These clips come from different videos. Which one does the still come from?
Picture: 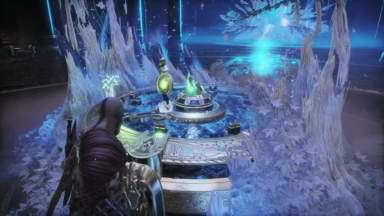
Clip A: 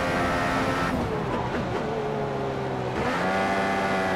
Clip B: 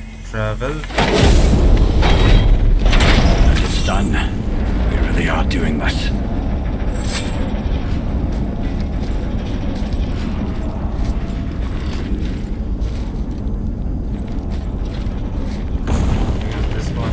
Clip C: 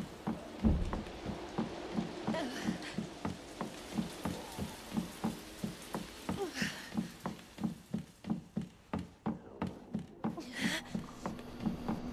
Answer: B